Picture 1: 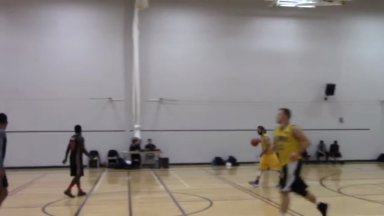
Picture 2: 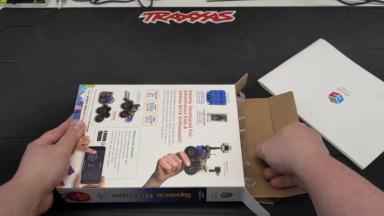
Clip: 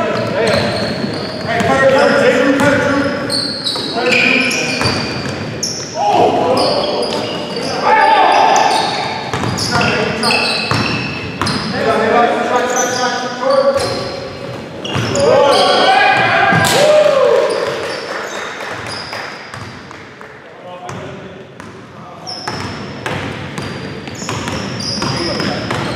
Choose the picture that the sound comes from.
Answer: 1